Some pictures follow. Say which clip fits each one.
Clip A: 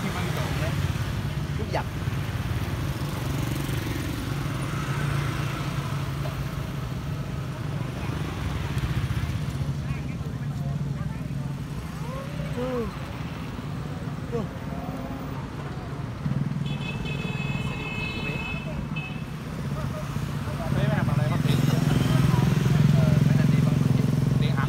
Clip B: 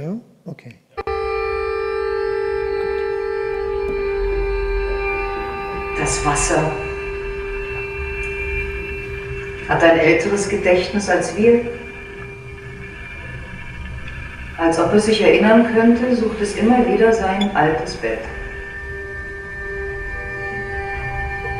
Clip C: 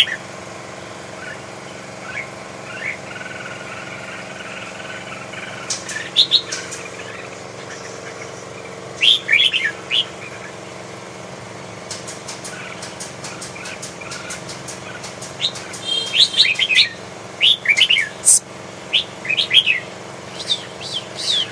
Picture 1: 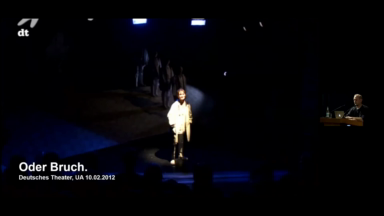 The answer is B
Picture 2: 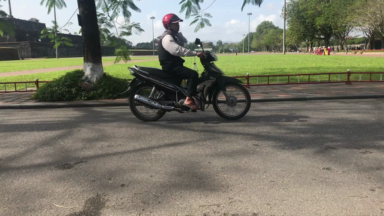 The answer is A